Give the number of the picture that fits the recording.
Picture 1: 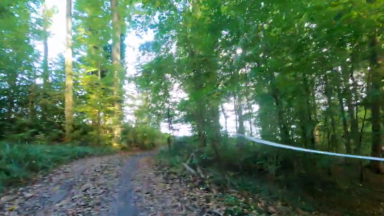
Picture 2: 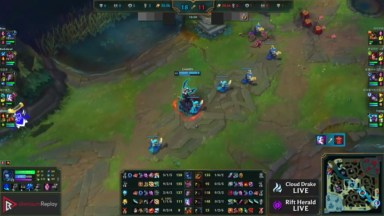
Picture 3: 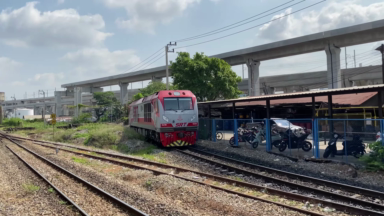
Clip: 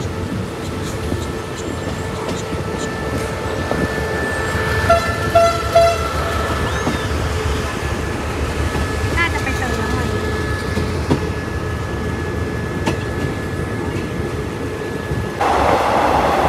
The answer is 3